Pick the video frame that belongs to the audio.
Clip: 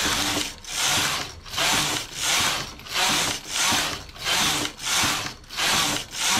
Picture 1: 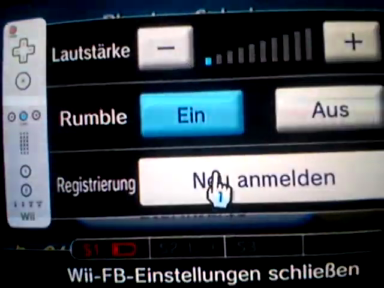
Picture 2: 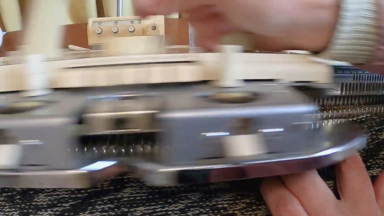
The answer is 2